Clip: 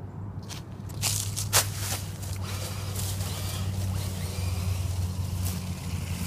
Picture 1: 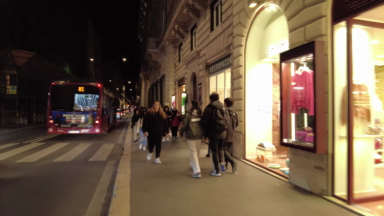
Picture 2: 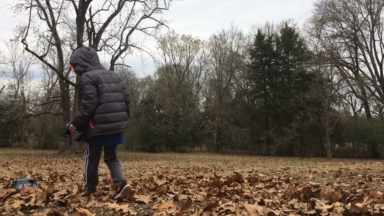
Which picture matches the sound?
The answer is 2